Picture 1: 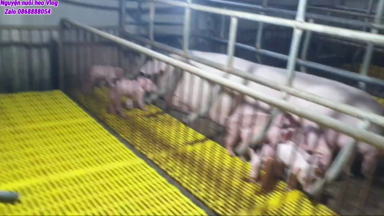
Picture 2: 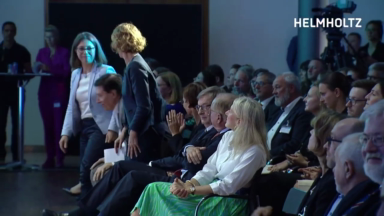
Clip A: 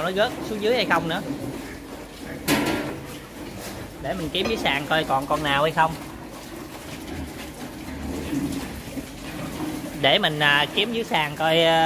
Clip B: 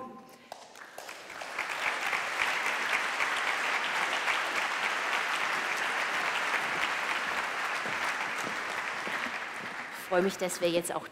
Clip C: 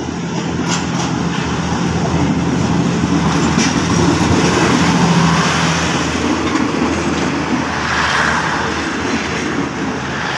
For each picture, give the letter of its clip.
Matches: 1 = A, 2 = B